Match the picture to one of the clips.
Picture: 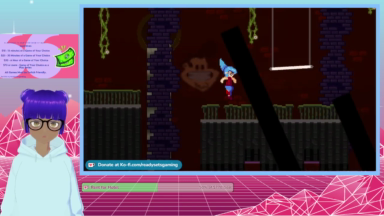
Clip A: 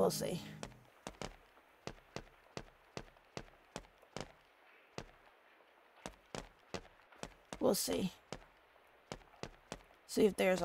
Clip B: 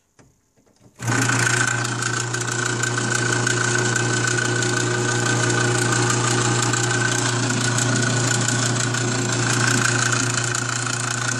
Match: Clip A